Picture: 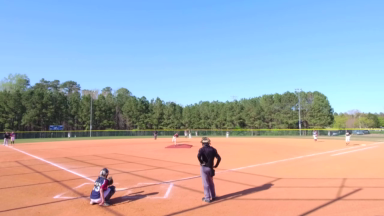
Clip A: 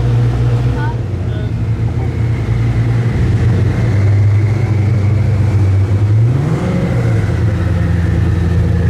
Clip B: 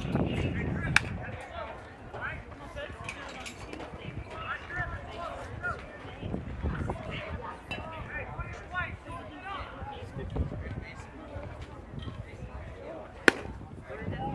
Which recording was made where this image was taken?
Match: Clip B